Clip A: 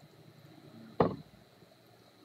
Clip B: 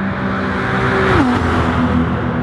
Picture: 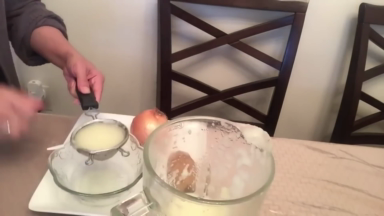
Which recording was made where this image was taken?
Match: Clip A